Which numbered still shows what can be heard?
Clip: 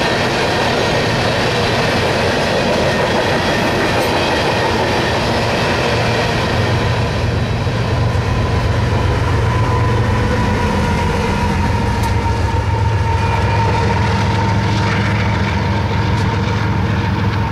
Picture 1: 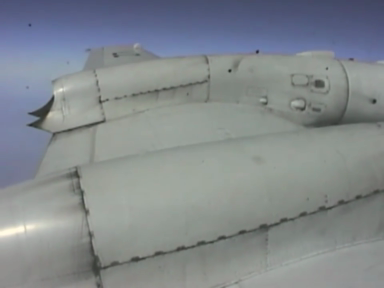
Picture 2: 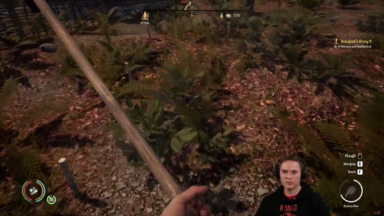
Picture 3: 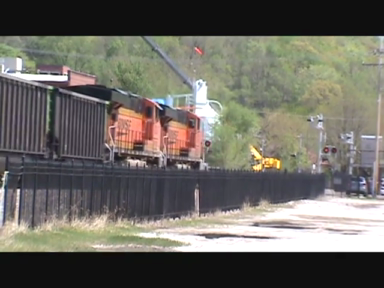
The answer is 3